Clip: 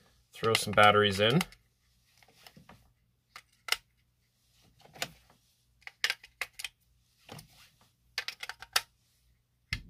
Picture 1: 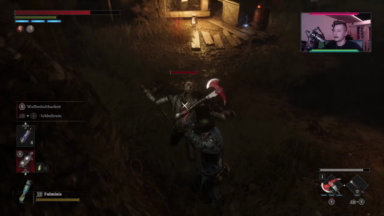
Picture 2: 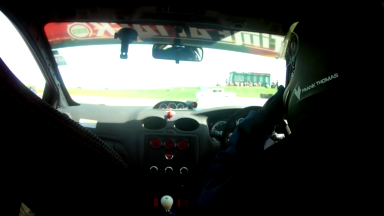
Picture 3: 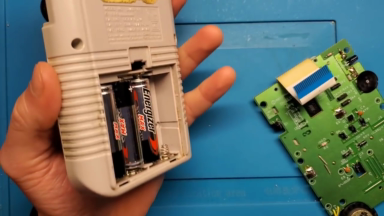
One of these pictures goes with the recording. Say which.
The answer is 3